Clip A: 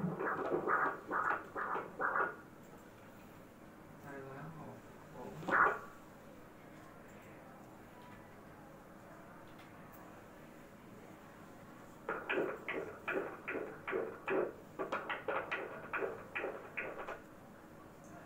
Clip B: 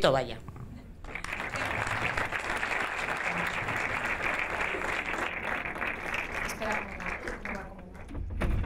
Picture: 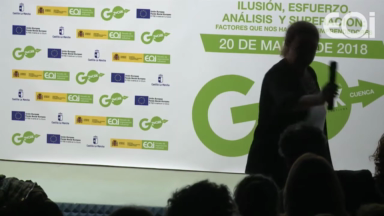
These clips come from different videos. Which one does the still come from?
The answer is B